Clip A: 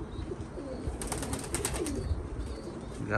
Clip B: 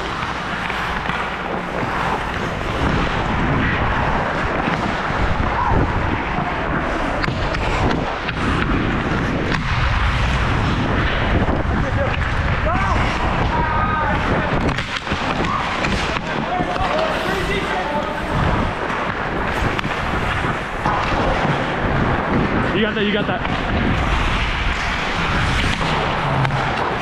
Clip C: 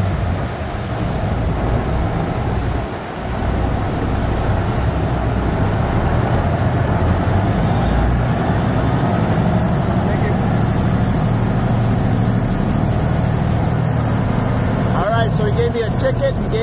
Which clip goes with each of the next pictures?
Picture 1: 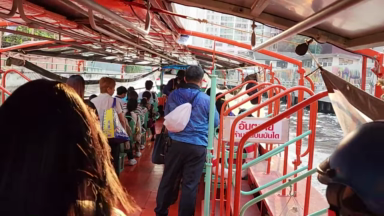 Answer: C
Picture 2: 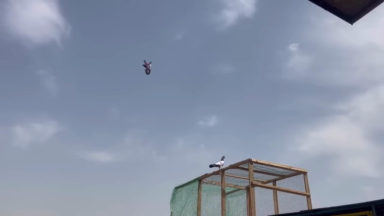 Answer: A